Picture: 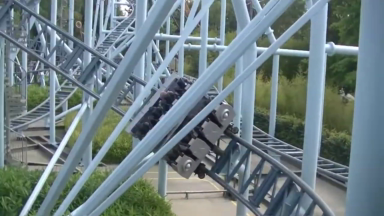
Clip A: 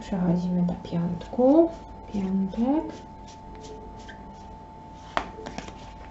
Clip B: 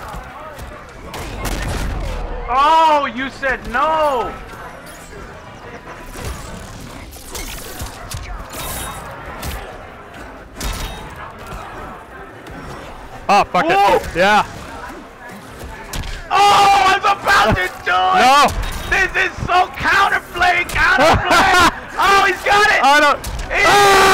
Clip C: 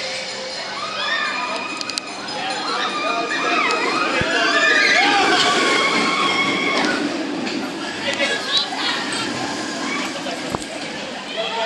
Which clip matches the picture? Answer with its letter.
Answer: C